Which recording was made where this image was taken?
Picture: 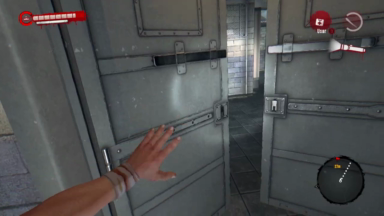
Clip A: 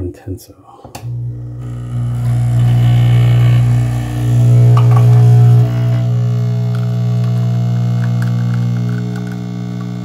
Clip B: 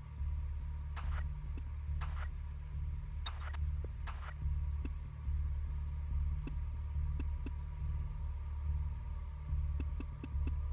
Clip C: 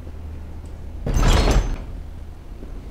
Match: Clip C